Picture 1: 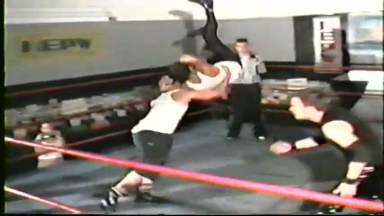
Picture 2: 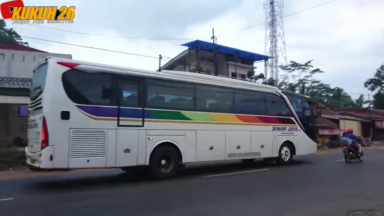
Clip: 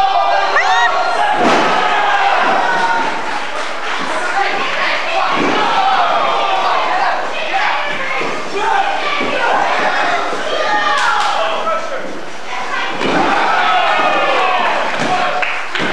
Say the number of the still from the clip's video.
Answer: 1